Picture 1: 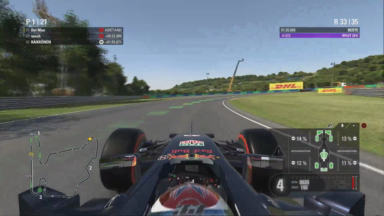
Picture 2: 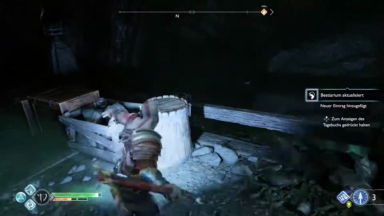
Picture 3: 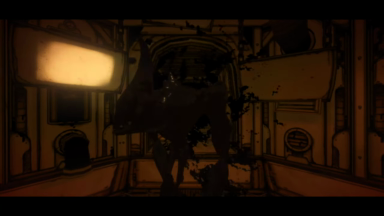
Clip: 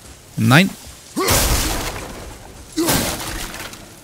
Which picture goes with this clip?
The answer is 2